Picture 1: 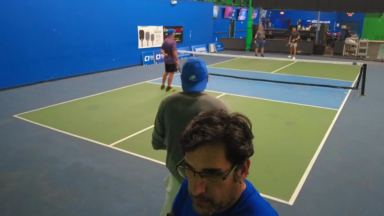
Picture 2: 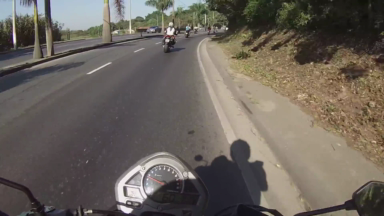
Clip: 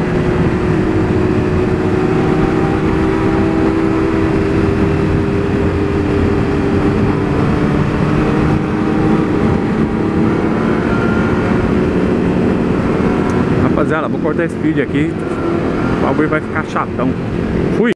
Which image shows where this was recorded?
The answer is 2